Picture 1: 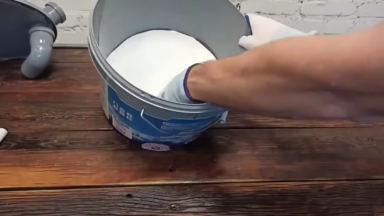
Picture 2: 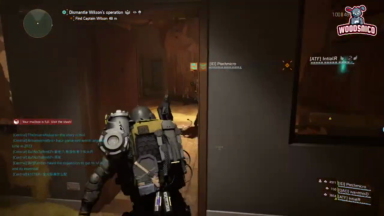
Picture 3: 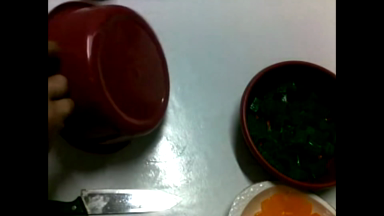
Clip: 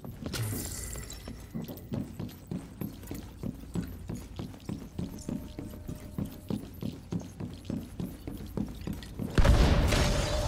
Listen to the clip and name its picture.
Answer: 2